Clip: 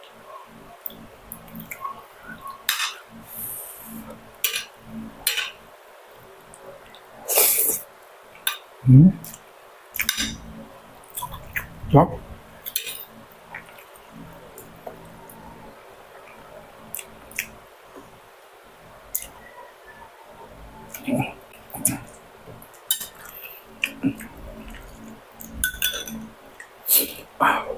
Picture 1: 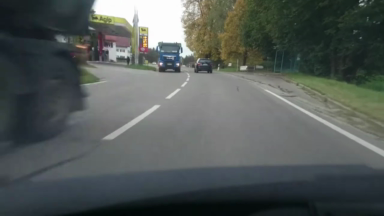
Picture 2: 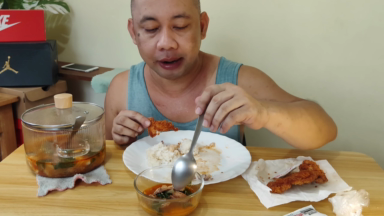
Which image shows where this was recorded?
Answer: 2